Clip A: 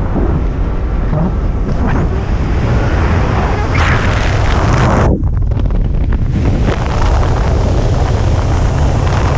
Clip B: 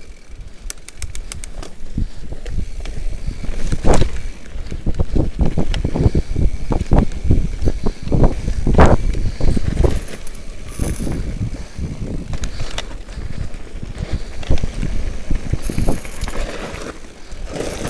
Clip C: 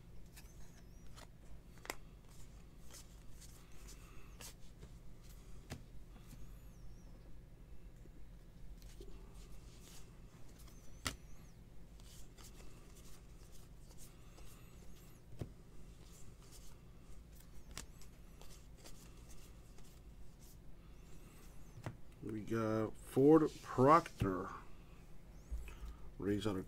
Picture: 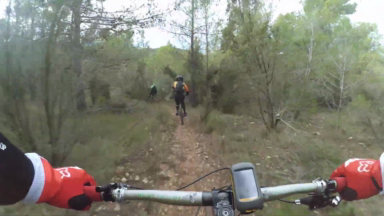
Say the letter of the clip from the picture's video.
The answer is B